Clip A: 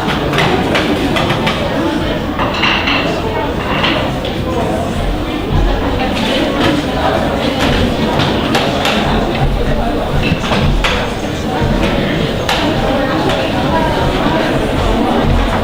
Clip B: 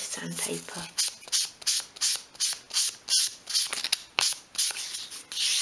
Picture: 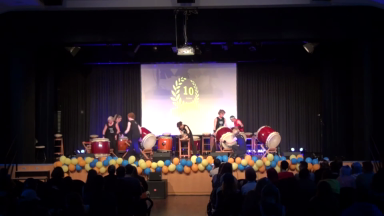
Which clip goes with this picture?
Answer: A